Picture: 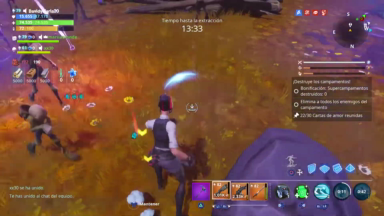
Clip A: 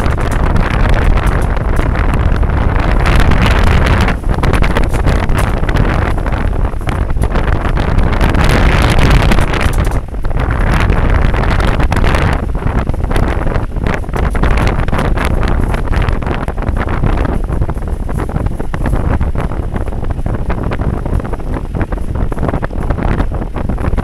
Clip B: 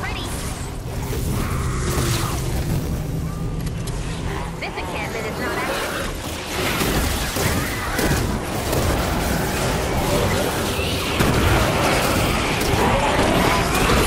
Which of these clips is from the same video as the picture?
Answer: B